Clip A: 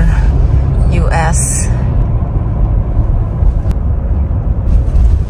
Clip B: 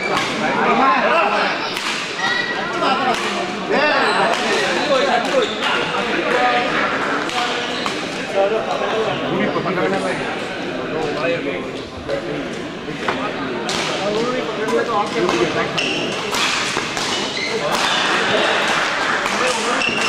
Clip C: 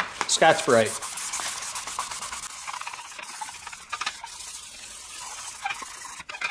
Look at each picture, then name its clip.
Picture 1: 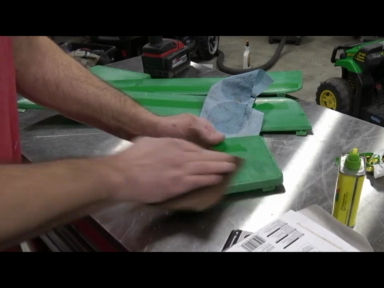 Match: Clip C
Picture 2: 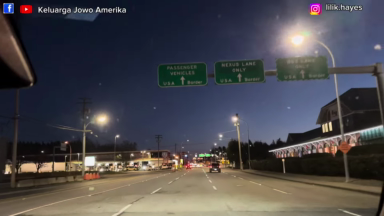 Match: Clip A